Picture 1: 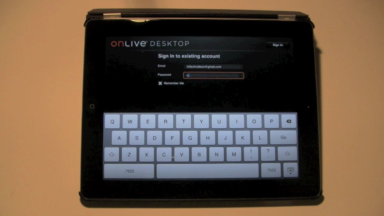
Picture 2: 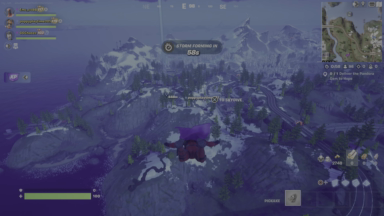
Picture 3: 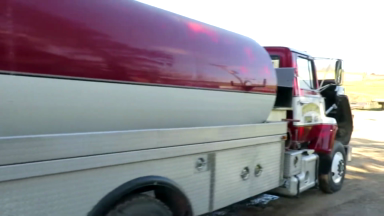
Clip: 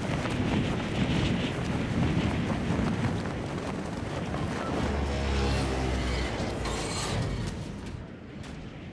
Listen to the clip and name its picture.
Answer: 2